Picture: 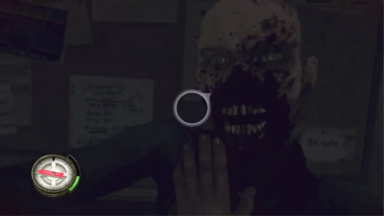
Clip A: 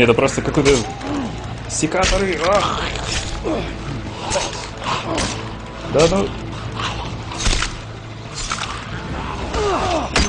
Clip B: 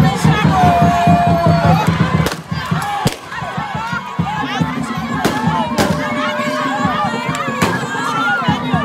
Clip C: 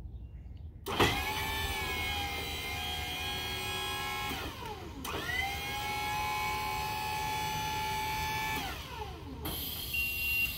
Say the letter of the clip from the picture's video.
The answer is A